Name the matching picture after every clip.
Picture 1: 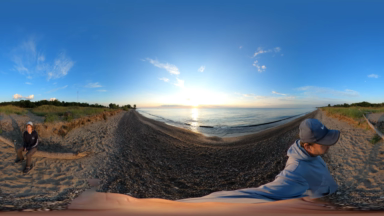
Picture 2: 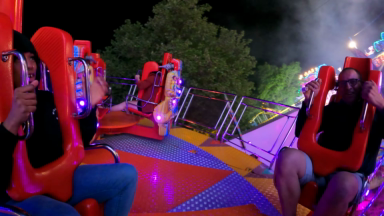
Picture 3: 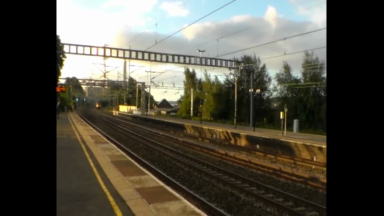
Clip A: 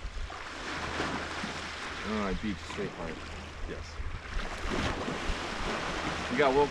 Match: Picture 1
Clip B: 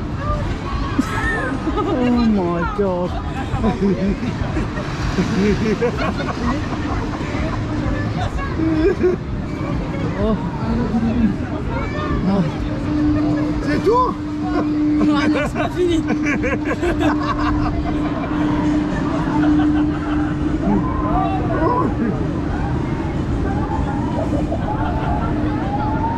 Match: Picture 2